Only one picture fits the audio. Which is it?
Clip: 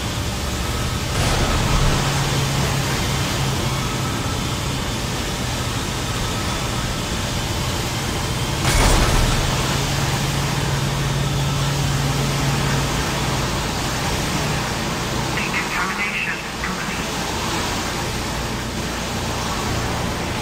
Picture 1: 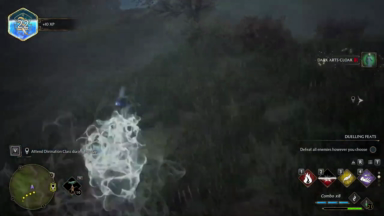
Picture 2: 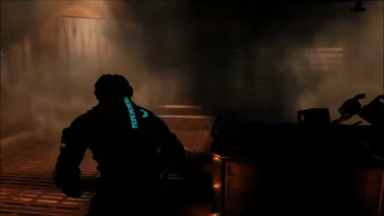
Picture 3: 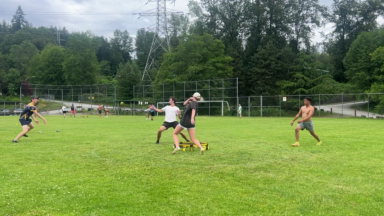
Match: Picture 2